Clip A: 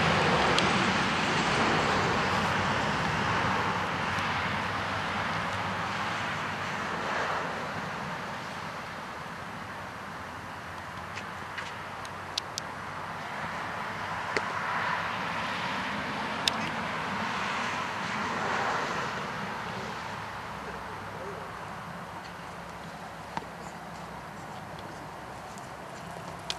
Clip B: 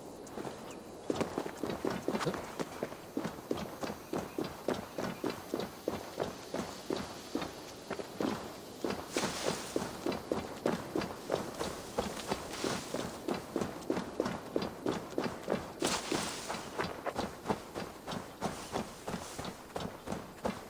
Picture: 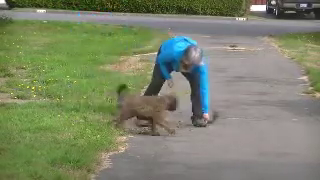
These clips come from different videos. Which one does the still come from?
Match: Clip A